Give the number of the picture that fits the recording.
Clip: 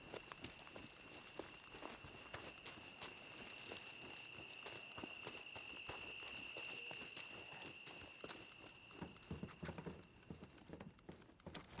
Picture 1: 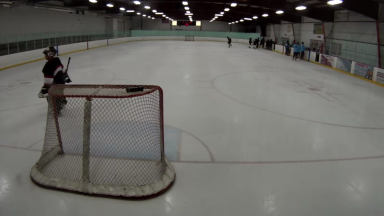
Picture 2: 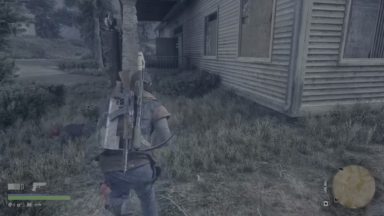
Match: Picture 2